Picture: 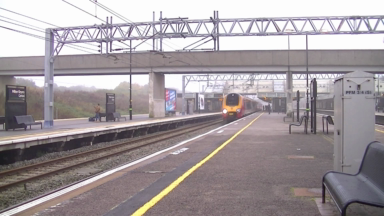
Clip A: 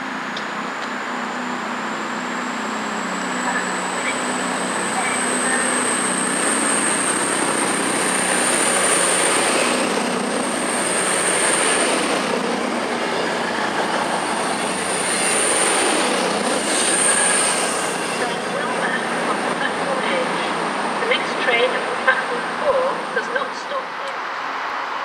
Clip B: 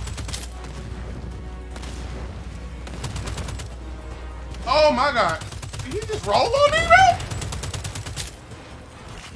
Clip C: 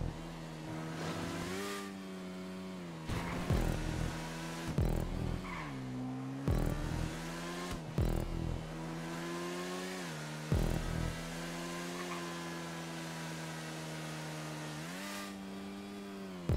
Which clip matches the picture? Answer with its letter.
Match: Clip A